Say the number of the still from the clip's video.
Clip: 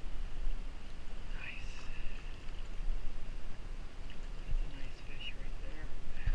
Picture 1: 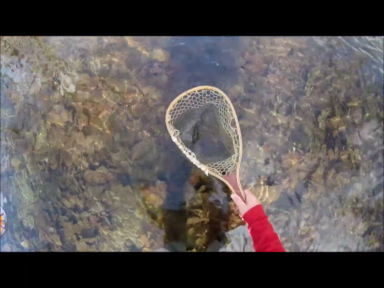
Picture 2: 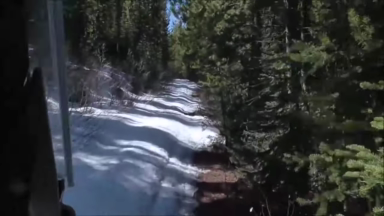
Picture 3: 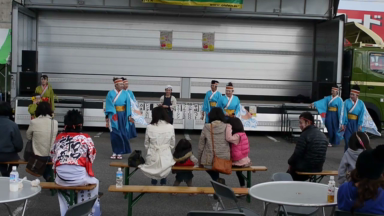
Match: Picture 1